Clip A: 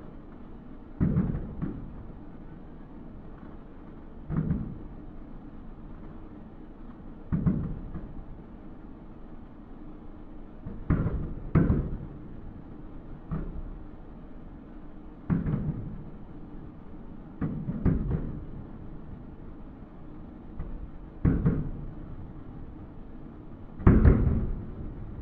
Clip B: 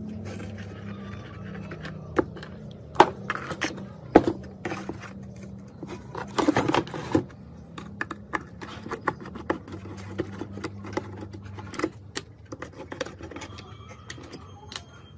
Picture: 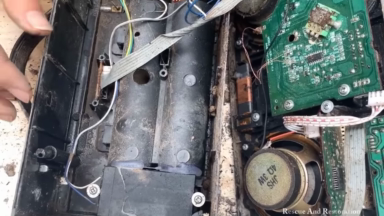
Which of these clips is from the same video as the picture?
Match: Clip B